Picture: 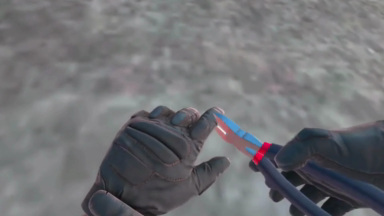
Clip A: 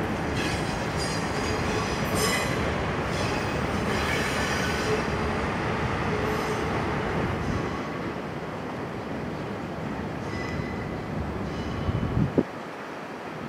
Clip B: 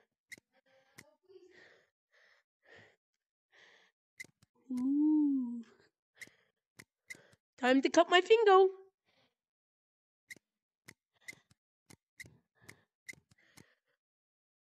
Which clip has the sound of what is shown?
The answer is B